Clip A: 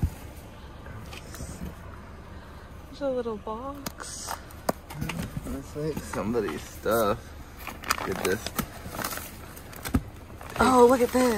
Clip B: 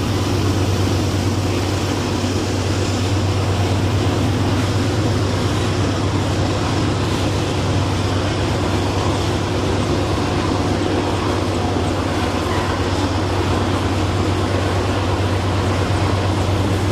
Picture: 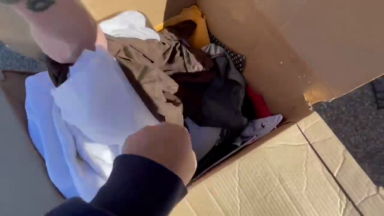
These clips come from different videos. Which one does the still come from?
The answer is A